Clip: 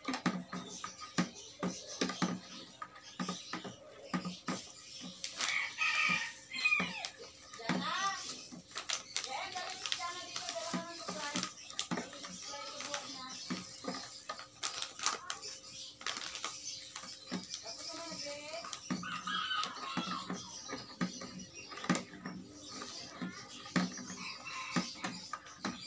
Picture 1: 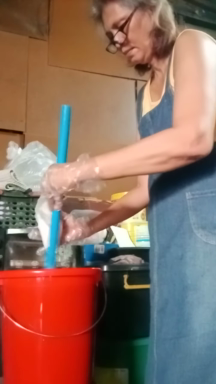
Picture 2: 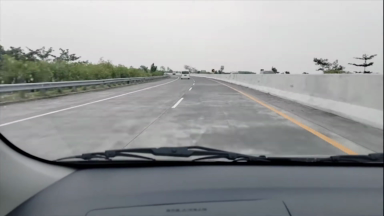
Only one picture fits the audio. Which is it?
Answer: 1